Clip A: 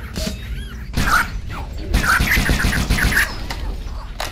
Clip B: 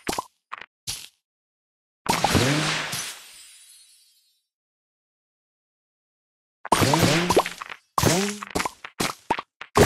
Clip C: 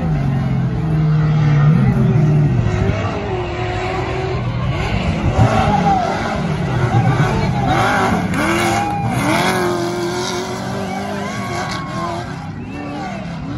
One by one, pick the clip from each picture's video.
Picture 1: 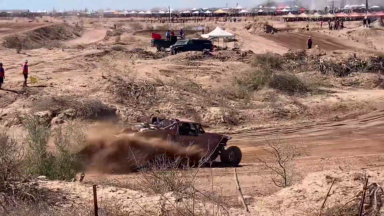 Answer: C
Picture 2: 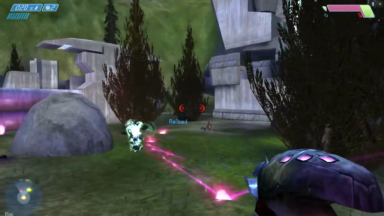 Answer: A